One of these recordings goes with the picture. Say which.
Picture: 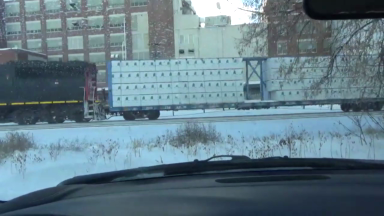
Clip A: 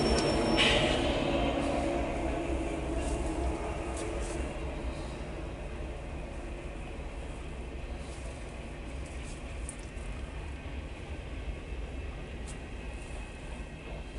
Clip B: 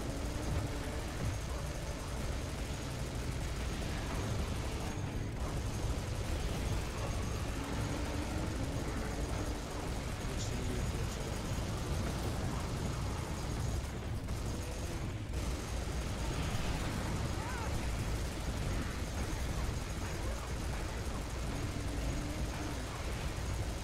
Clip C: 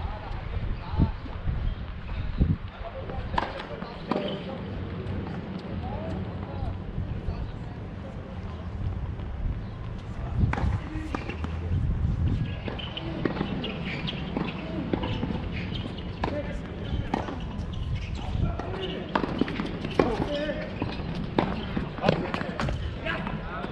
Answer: A